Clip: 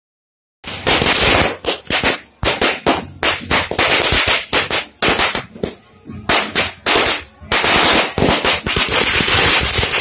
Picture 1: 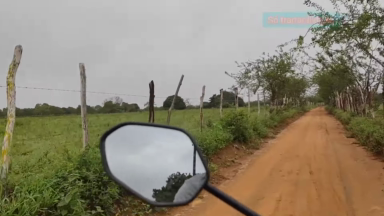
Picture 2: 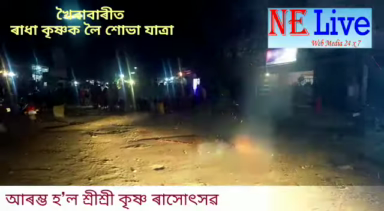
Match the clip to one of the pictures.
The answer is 2